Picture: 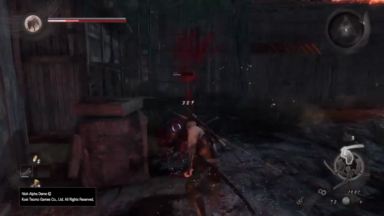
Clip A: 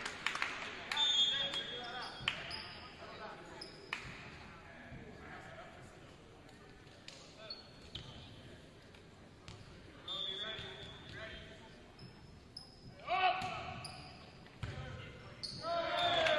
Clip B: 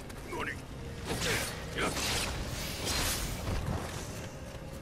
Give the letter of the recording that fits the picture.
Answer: B